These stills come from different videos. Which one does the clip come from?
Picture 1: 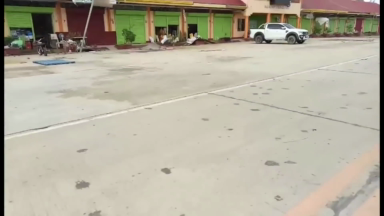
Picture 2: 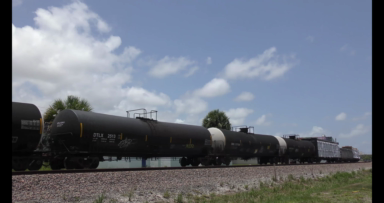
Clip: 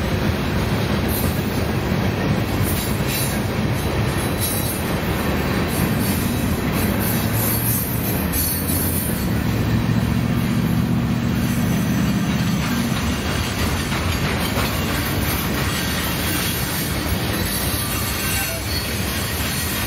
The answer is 2